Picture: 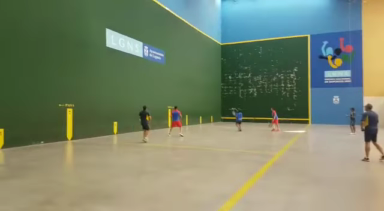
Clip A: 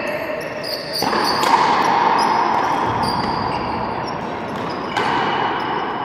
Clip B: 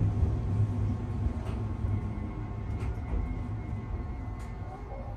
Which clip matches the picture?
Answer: A